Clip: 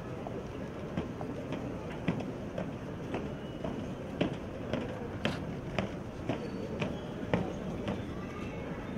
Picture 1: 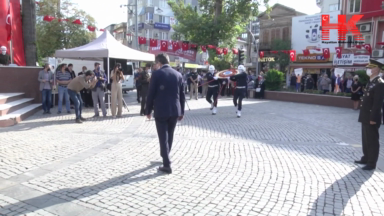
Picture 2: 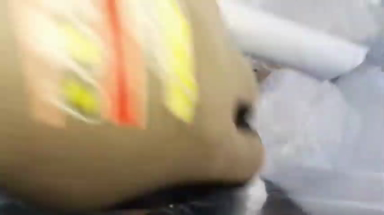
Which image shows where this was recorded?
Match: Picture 1